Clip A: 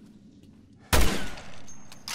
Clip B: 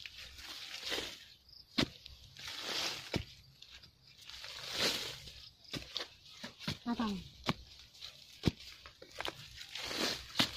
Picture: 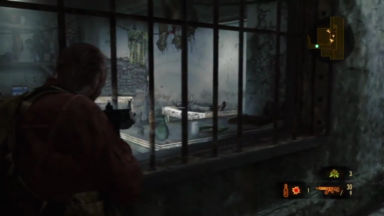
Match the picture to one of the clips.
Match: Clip A